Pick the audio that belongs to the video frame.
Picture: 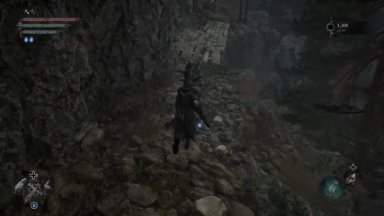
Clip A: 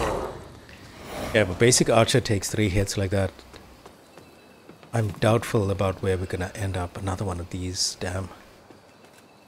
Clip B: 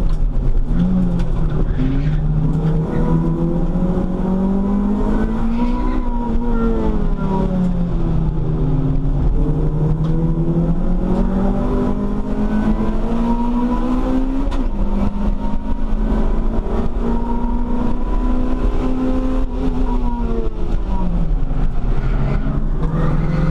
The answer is A